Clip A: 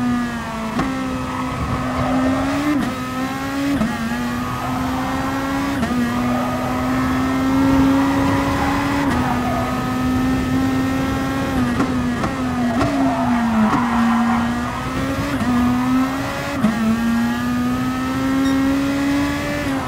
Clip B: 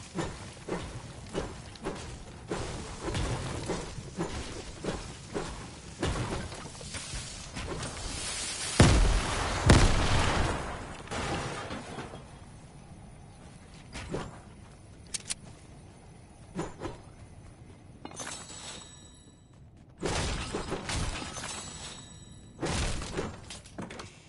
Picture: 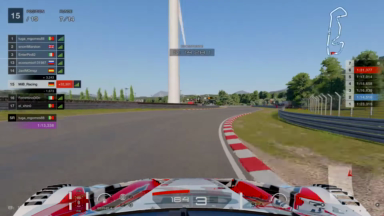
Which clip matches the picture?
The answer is A